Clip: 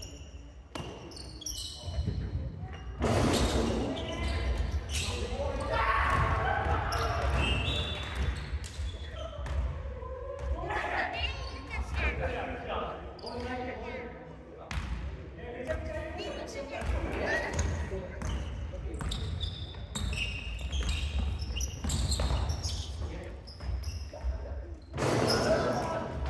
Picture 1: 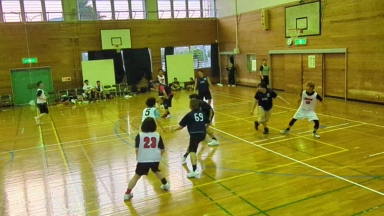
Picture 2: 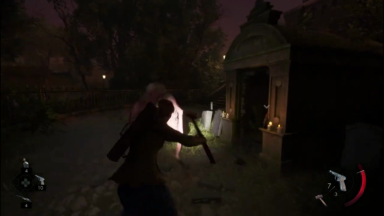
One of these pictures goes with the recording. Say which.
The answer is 1